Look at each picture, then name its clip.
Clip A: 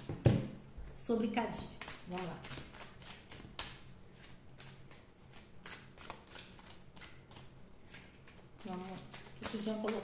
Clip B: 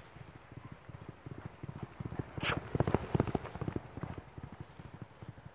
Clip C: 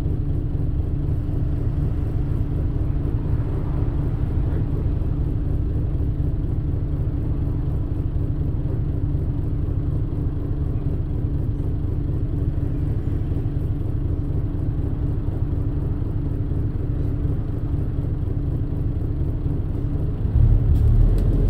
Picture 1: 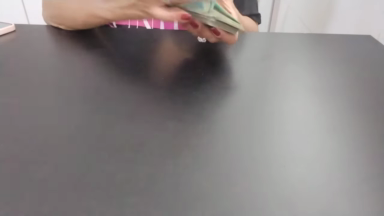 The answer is A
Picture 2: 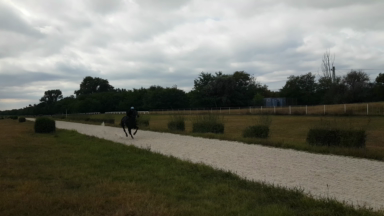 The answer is B